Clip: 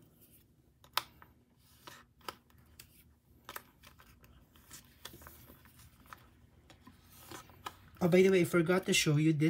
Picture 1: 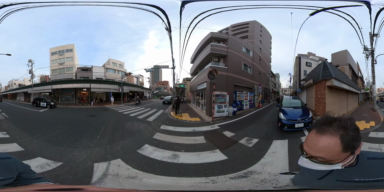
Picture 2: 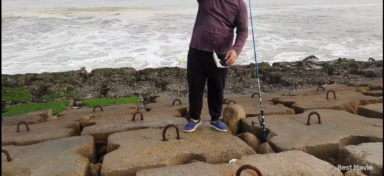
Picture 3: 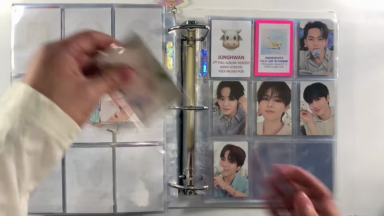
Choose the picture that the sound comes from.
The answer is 3